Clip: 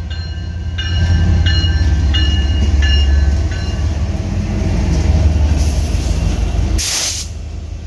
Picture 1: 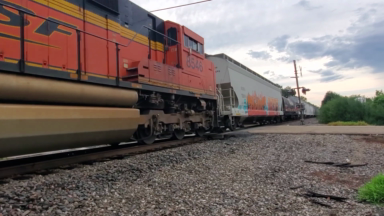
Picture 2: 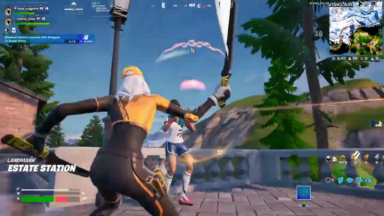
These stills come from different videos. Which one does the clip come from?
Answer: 1